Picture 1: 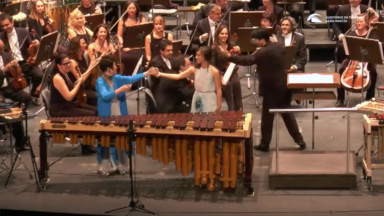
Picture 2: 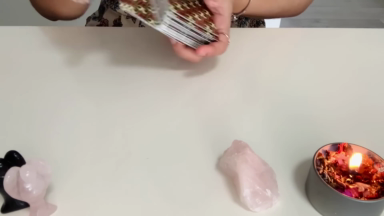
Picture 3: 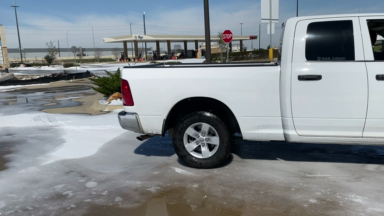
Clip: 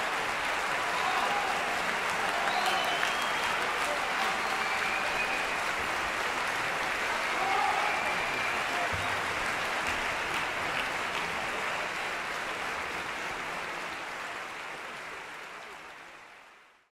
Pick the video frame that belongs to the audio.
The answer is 1